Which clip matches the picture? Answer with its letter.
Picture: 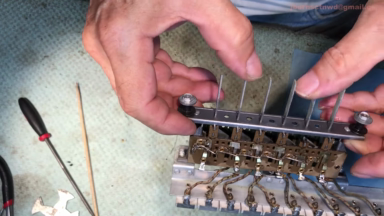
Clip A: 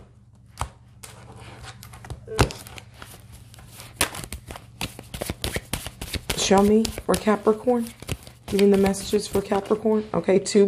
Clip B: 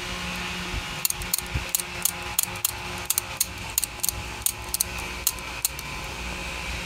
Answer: B